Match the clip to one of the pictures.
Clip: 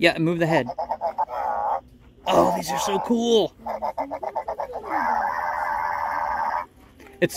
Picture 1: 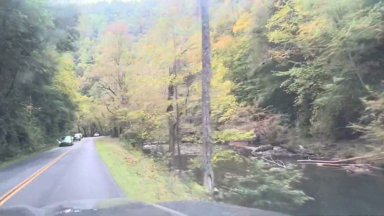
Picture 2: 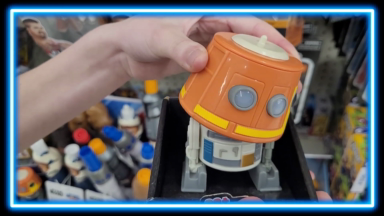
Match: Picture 2